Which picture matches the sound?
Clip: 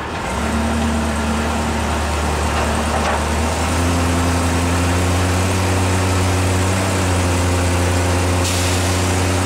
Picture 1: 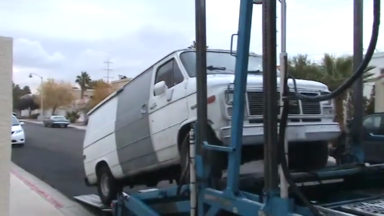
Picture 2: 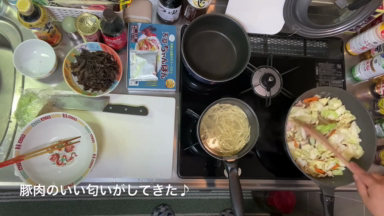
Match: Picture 1